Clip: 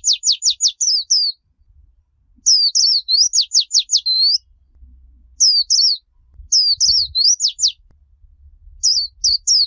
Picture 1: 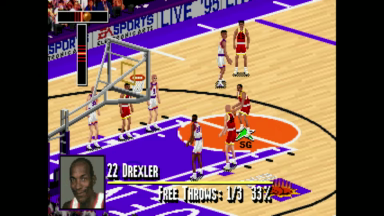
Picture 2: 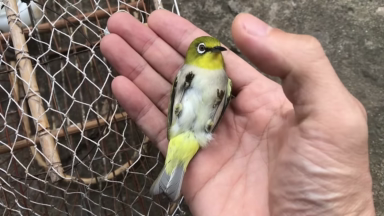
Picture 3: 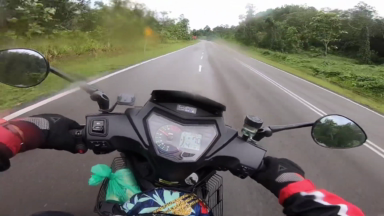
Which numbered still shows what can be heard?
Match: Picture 2